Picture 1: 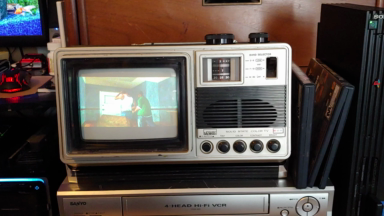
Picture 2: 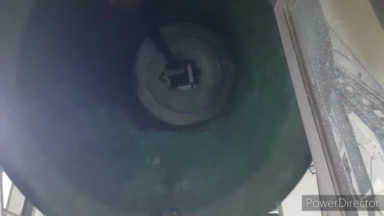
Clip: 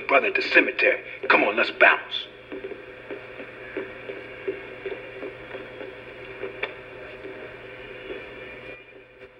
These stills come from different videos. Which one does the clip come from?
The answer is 1